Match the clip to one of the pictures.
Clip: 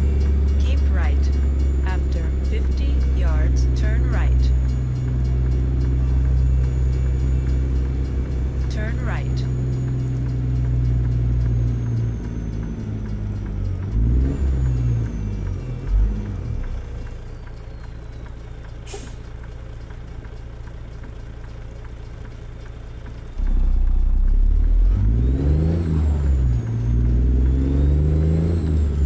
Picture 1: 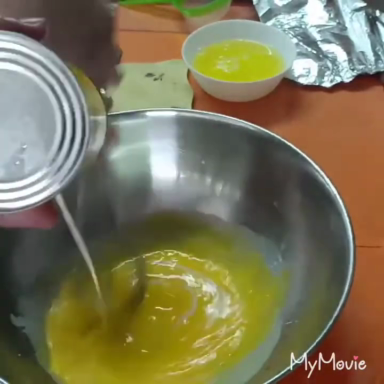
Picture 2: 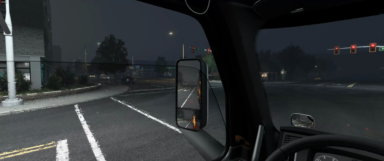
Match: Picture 2